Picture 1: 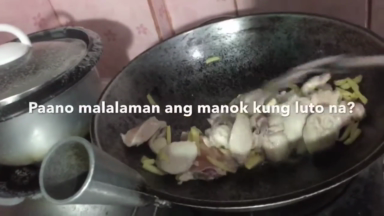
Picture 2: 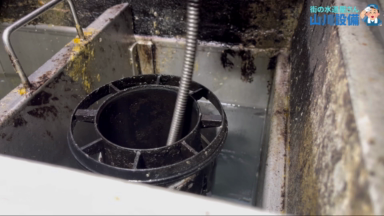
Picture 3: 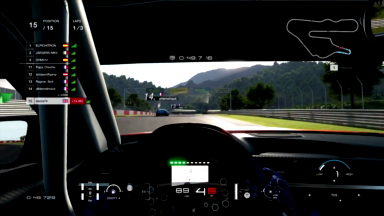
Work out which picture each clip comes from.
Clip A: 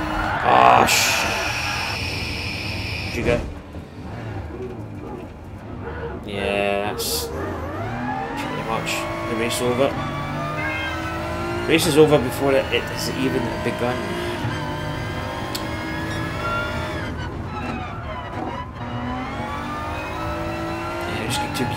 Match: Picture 3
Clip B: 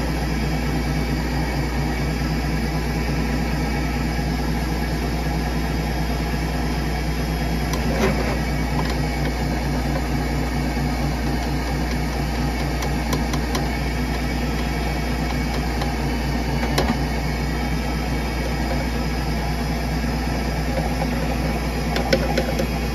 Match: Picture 2